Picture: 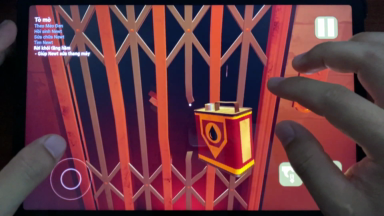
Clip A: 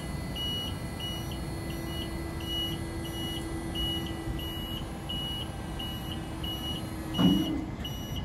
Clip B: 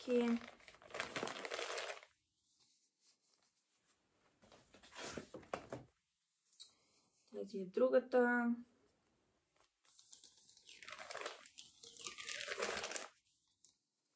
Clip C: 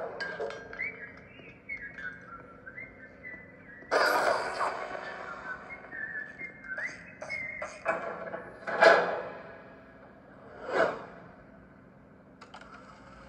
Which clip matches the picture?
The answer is C